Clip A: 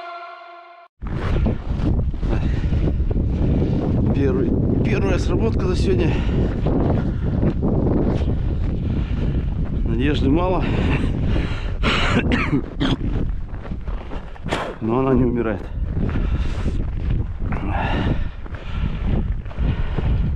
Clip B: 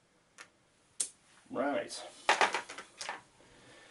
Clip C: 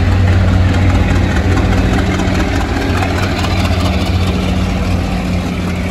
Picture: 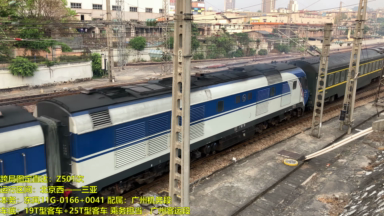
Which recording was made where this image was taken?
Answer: C